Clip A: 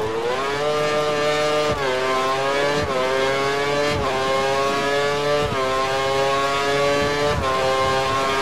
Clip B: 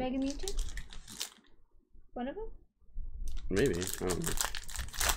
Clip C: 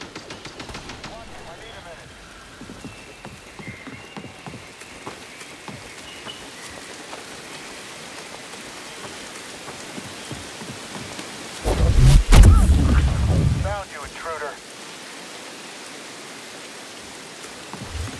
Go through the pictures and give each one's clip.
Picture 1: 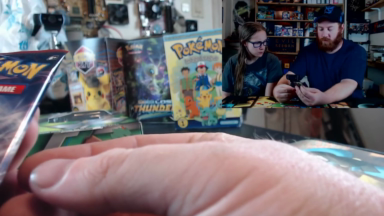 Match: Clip B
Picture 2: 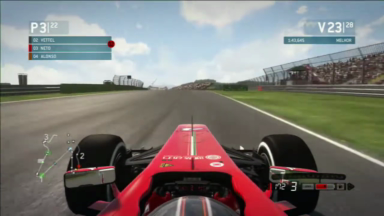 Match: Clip A